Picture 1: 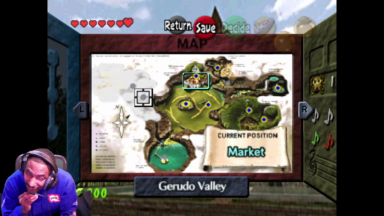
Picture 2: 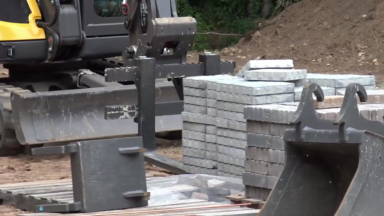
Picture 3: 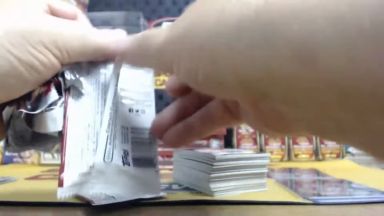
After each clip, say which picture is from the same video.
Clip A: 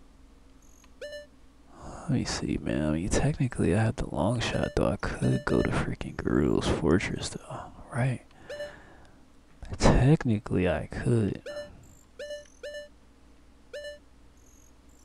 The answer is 1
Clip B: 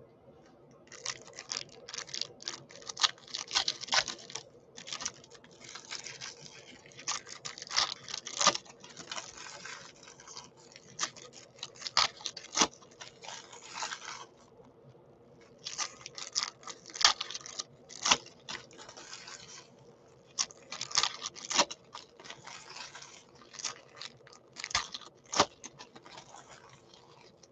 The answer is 3